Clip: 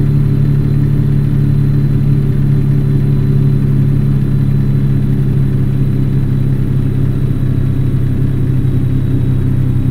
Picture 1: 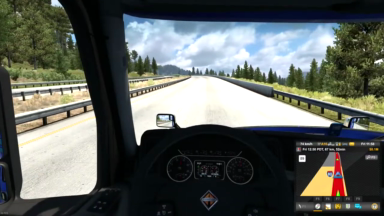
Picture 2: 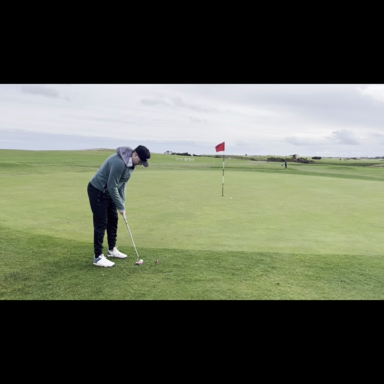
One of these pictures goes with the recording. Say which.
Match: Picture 1